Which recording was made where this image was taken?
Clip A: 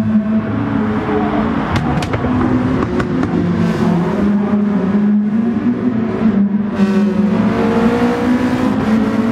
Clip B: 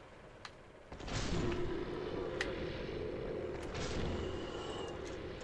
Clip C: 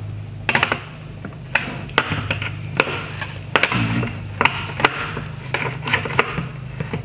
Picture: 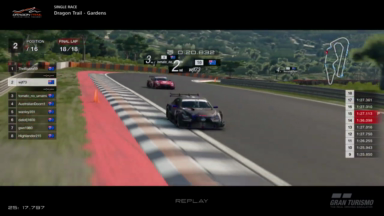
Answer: A